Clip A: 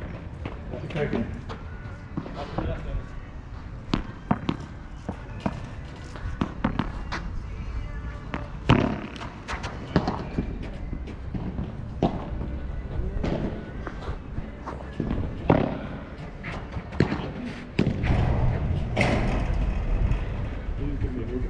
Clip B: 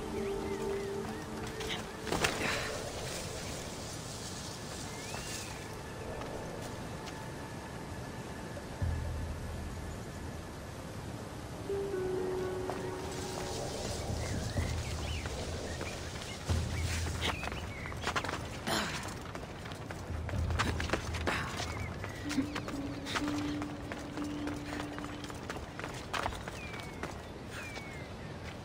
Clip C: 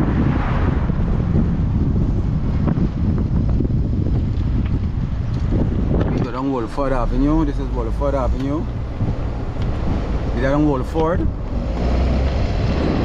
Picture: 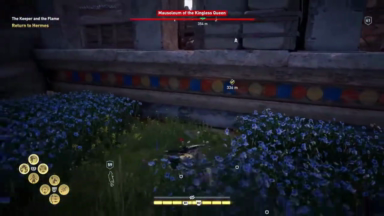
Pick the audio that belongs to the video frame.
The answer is B